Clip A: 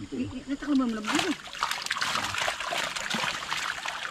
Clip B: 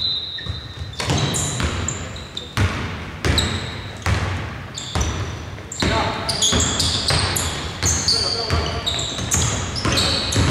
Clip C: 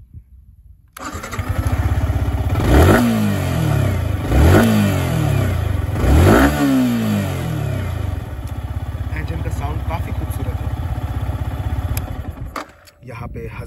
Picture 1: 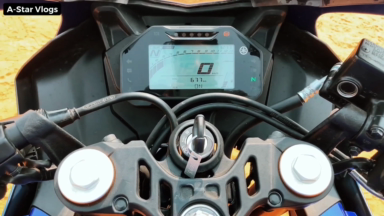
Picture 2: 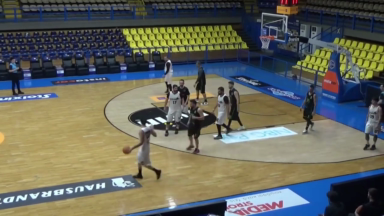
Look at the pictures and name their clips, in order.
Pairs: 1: C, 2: B